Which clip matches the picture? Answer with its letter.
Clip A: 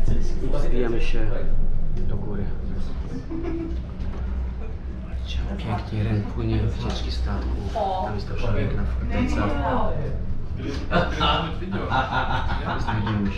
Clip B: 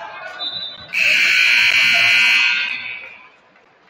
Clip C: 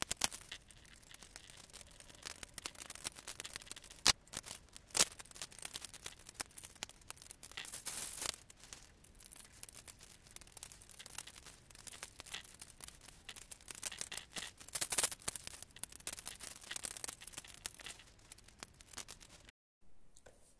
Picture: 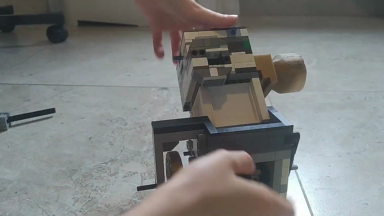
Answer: C